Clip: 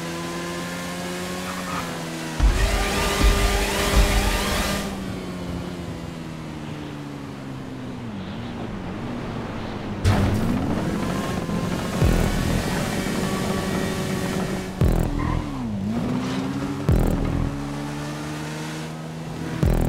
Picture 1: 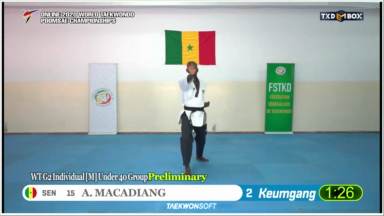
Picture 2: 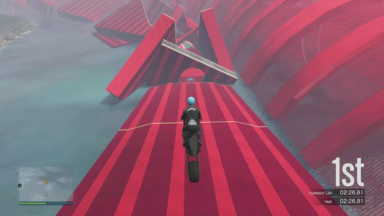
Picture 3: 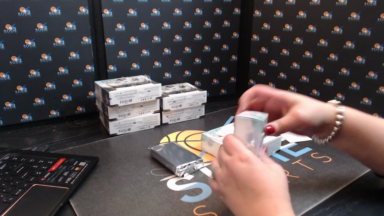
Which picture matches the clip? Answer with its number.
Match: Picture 2